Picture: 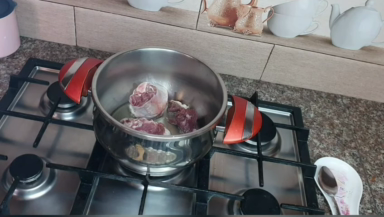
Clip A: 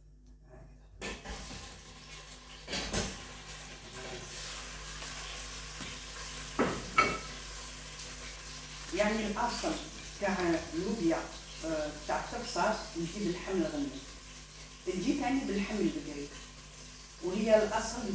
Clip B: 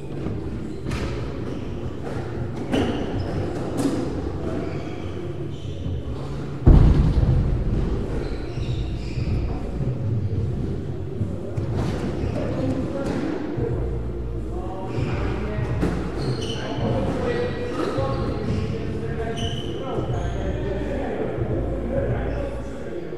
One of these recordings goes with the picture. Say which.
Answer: A